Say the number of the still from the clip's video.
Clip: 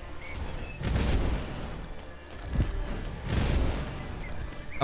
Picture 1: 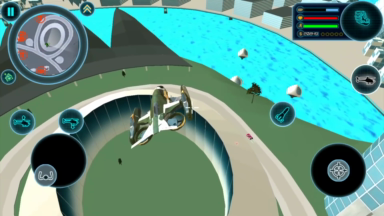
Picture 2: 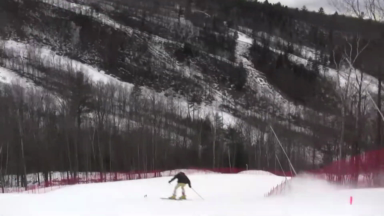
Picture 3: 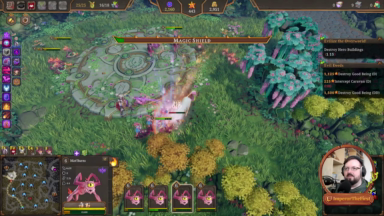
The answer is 3